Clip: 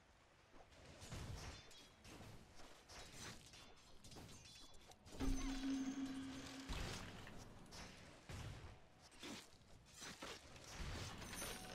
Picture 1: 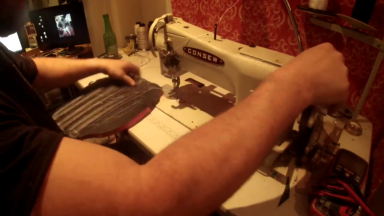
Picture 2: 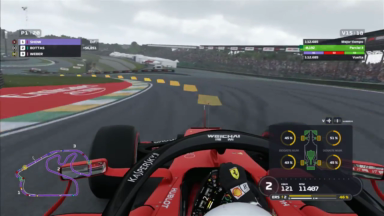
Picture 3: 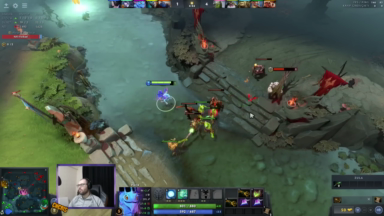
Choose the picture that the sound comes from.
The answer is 3